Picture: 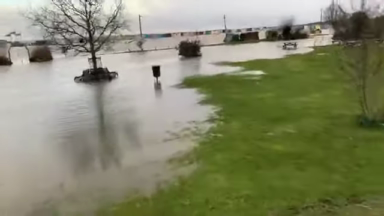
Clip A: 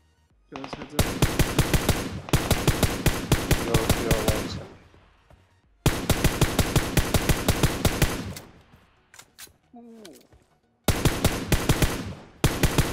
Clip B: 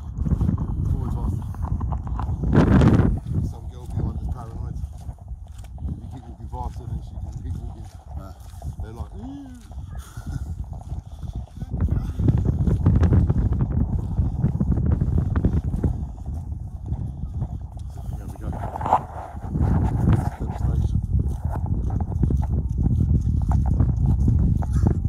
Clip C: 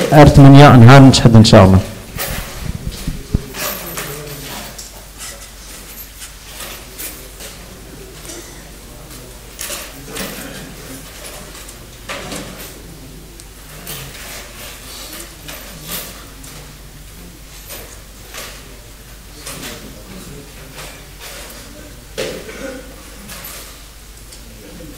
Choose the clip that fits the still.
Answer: B